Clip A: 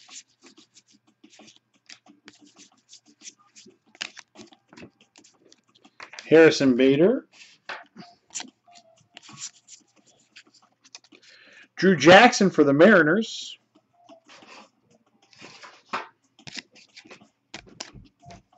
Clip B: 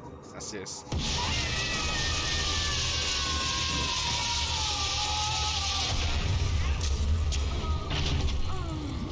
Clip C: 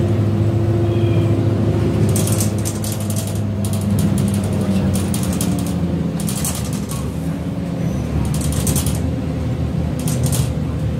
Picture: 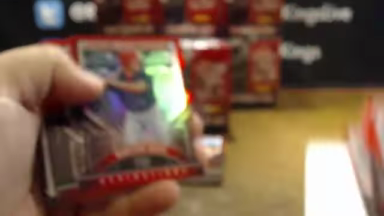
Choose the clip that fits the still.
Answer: A